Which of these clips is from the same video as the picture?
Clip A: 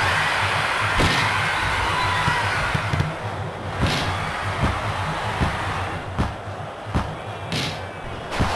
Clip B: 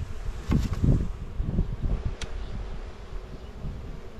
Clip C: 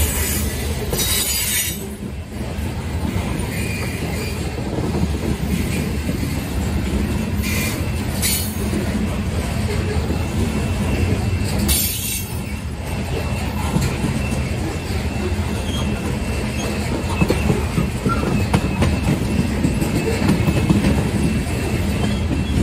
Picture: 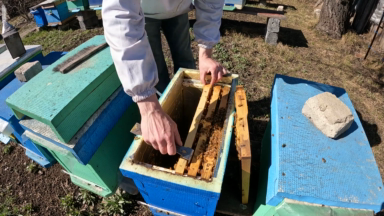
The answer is B